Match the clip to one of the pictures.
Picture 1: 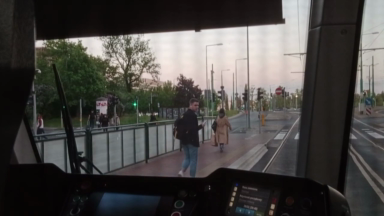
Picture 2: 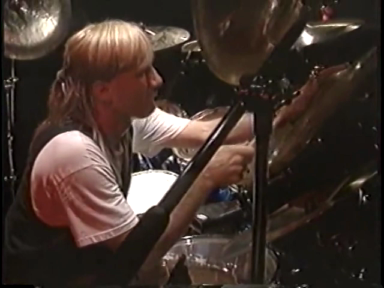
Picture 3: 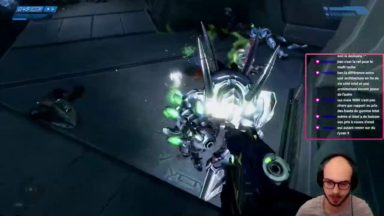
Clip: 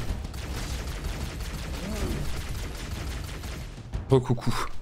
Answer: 3